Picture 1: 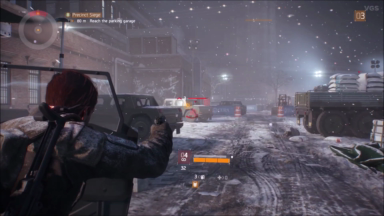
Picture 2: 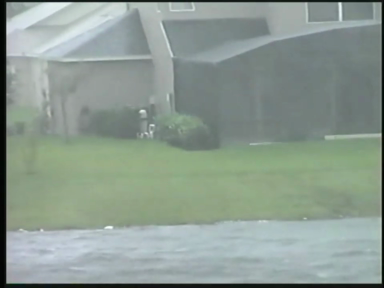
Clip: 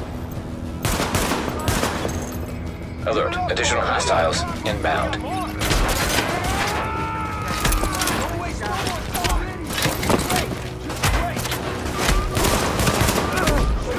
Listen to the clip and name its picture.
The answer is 1